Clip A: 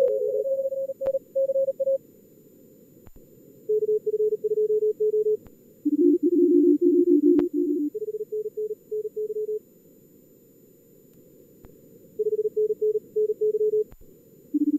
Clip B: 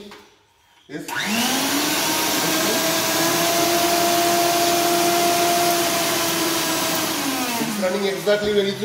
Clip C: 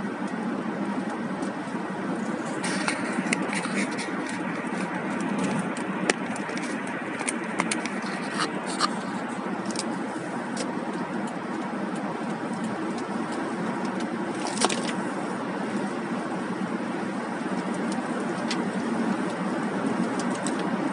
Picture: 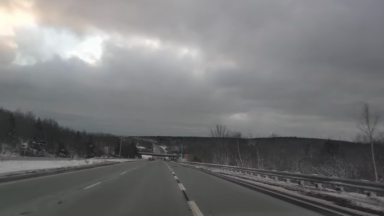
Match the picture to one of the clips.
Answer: C